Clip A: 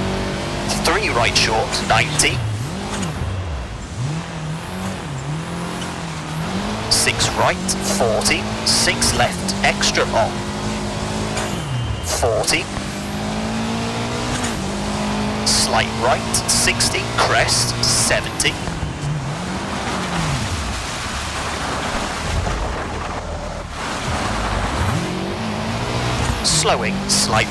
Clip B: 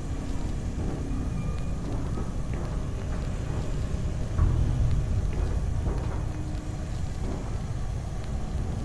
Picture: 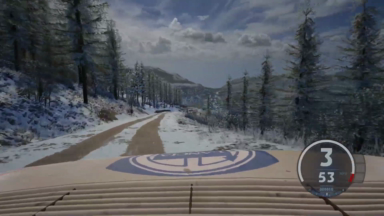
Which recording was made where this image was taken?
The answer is A